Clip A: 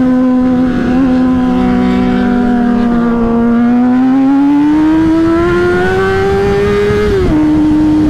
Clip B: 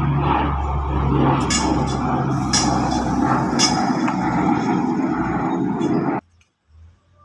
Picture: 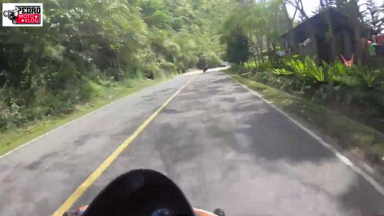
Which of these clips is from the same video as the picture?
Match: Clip A